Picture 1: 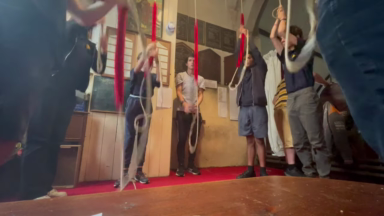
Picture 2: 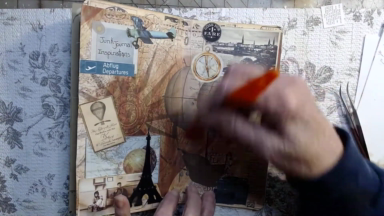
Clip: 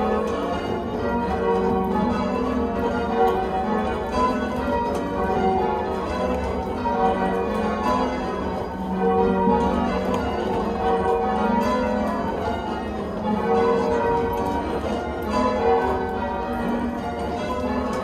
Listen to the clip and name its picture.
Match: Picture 1